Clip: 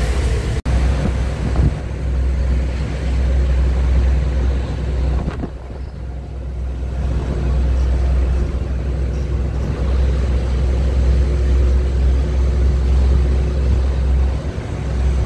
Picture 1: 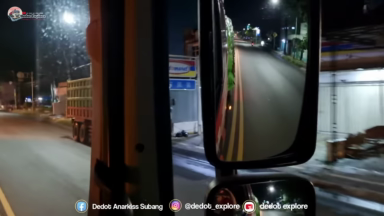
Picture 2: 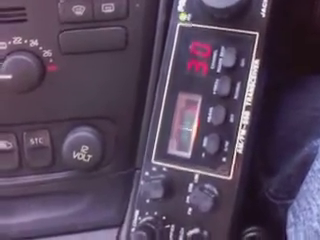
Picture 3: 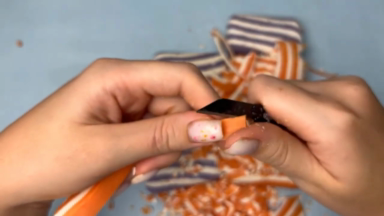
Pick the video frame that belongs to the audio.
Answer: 1